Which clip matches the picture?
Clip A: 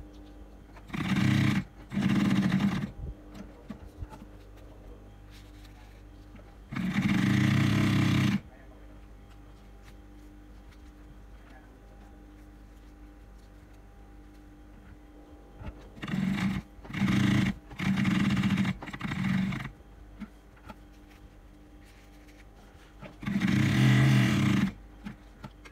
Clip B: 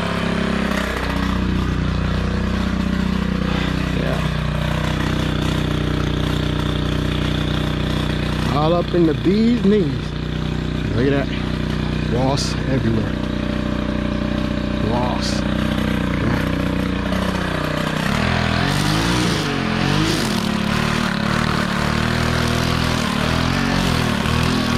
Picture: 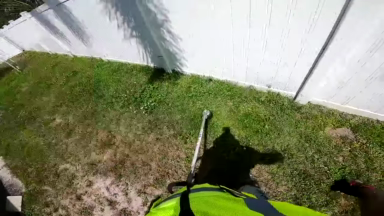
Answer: B